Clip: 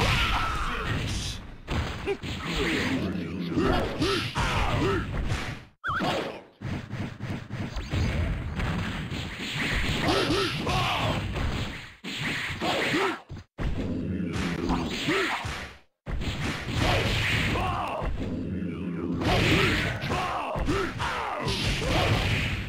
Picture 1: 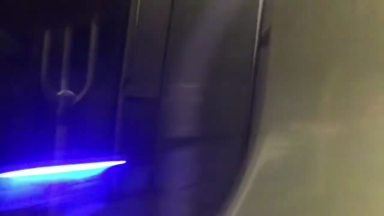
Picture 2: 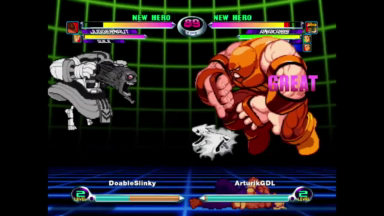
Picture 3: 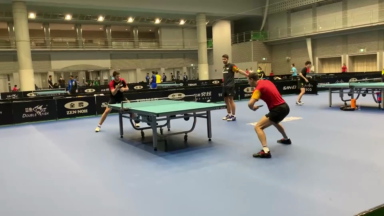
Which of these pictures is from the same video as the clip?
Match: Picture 2